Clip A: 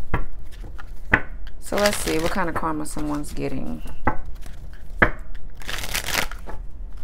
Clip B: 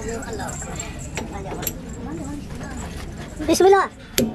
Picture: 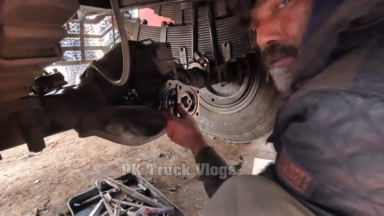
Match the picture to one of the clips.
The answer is B